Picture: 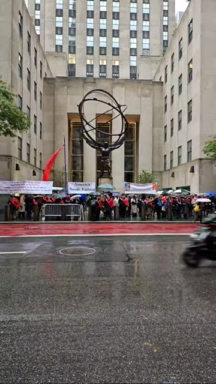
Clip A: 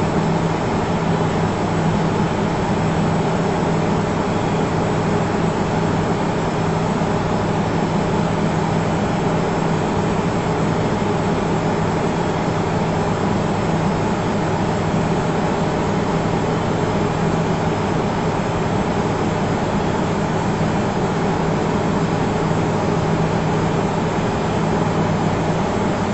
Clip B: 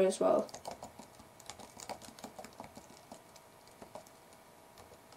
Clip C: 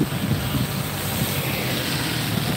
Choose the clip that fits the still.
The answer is C